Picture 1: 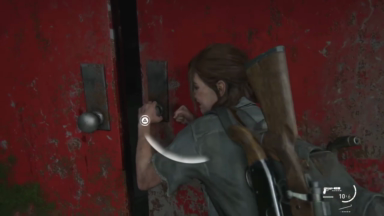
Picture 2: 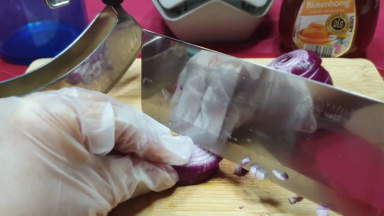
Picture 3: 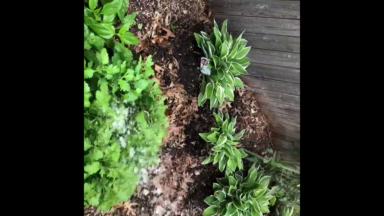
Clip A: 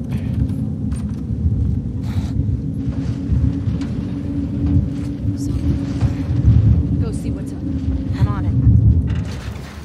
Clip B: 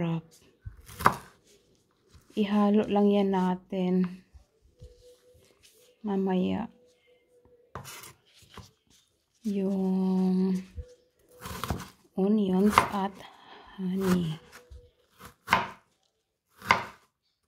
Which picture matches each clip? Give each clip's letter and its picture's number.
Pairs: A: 1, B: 2